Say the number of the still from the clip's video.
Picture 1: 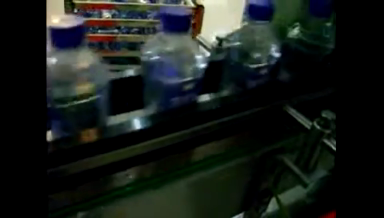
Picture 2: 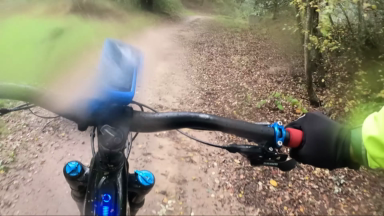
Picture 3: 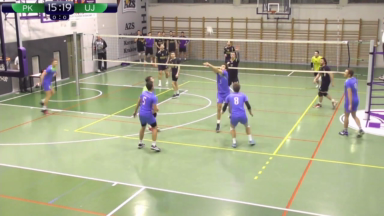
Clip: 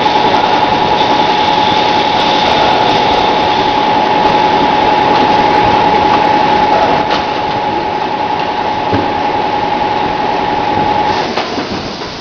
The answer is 1